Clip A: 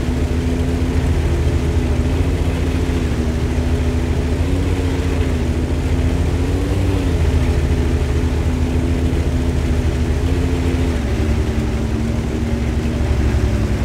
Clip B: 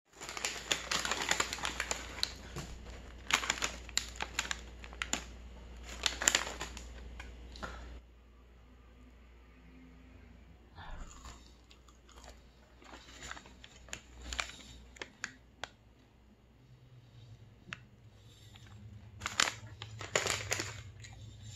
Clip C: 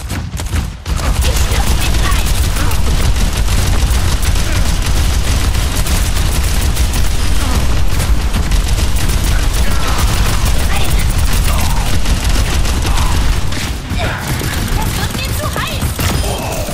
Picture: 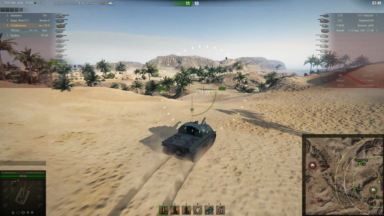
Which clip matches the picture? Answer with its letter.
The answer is A